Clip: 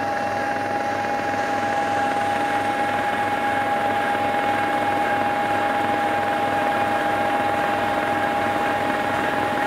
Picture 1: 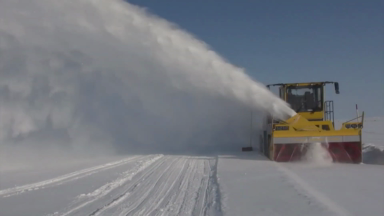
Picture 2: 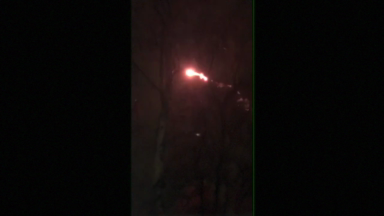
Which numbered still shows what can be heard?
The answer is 1